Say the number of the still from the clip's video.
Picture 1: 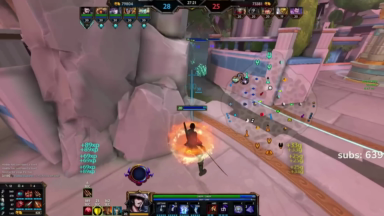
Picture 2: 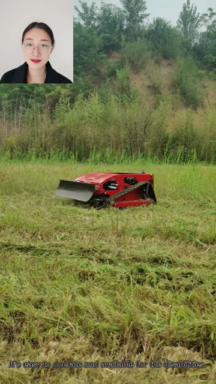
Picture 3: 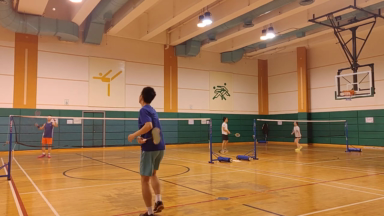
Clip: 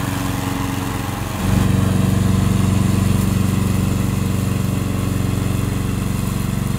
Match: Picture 2